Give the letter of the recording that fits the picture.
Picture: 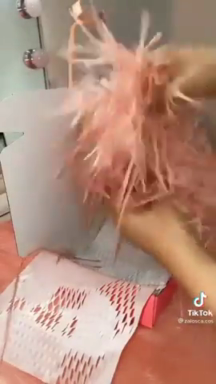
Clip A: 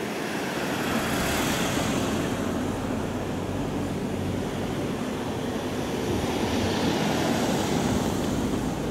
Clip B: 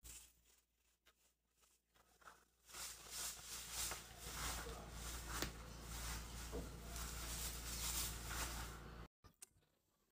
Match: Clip B